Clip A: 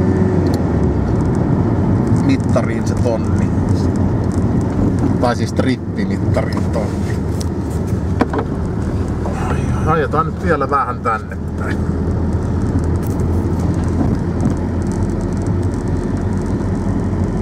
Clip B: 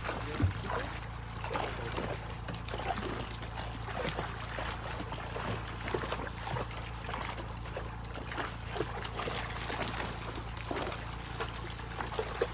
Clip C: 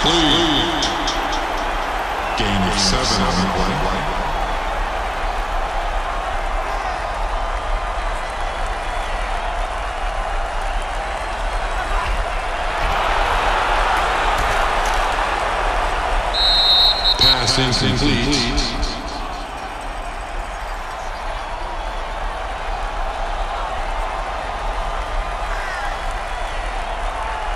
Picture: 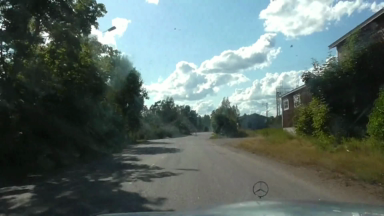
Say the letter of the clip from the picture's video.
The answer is A